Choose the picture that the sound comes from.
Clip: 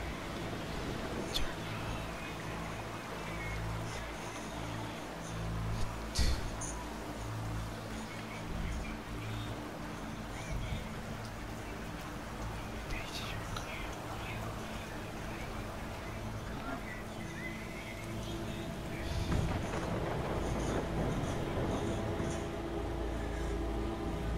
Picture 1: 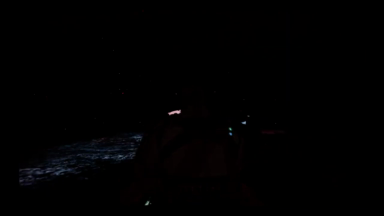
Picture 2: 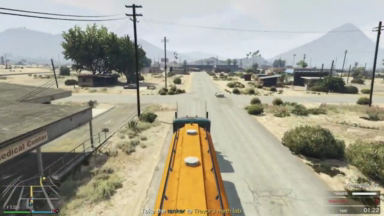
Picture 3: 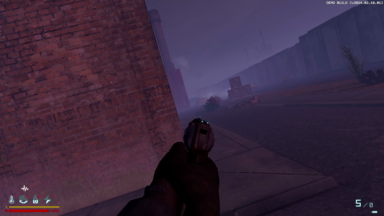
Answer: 1